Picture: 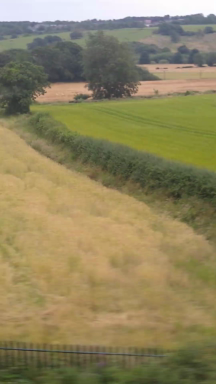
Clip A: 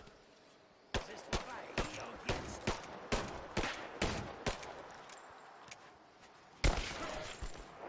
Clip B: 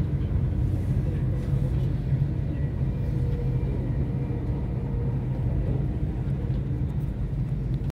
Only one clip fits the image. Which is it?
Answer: B